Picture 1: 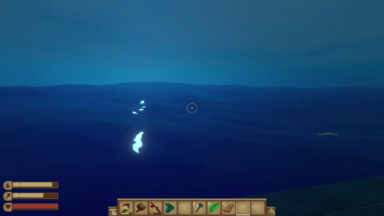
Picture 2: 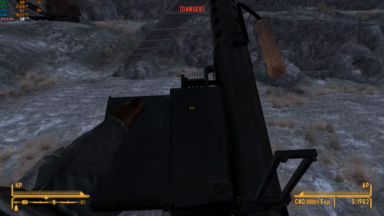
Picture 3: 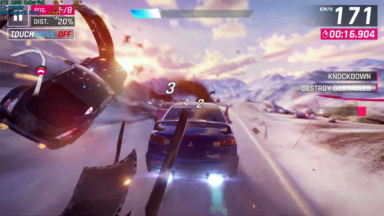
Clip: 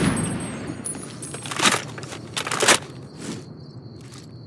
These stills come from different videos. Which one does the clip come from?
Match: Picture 2